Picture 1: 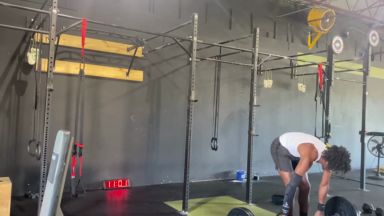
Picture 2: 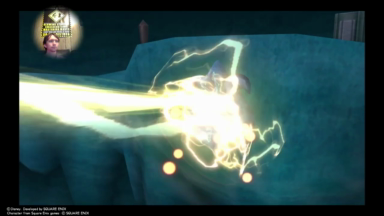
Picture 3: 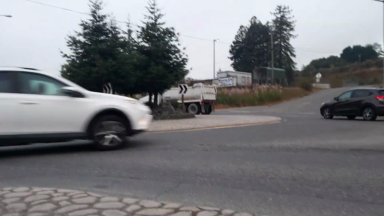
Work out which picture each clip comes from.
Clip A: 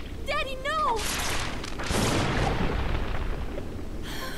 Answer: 2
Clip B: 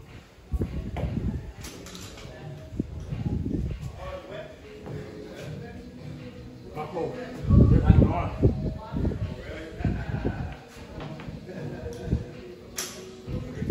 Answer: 1